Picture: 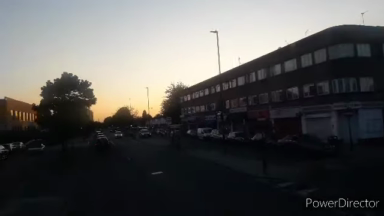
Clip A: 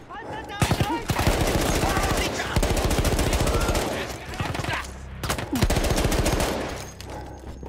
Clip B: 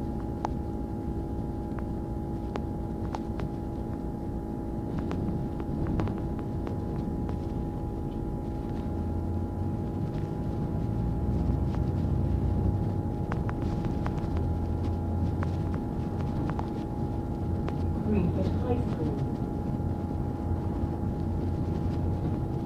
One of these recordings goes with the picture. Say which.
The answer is B